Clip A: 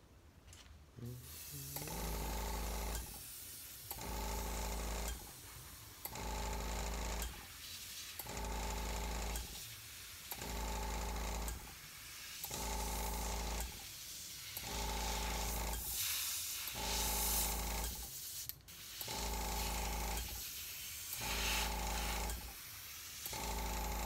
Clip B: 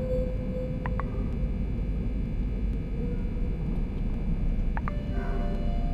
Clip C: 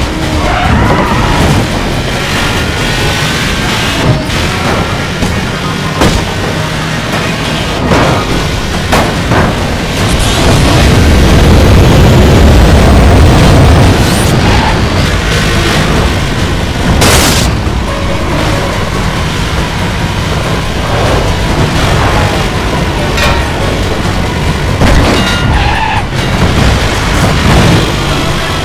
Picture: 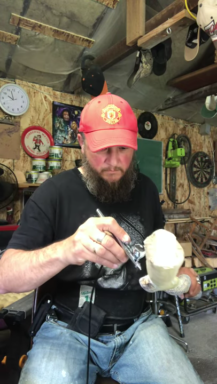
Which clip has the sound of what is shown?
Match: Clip A